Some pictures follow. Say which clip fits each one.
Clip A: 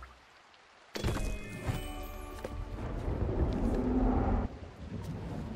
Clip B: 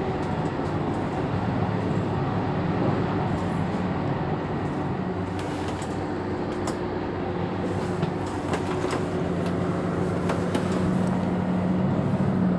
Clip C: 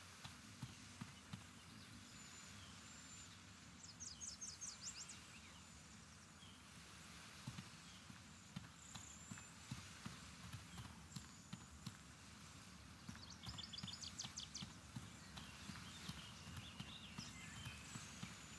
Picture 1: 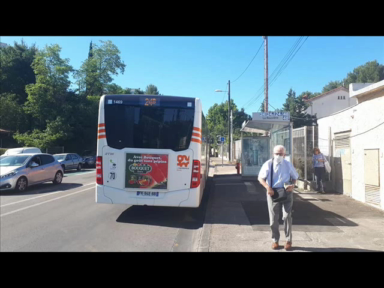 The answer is B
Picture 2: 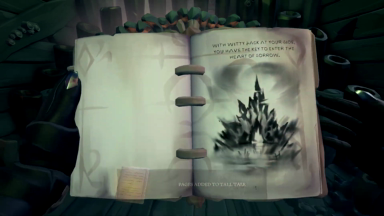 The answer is A